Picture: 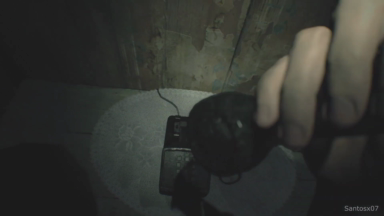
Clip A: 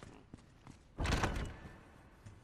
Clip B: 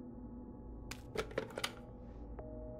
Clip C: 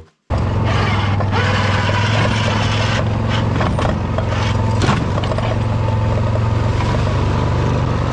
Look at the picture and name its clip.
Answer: B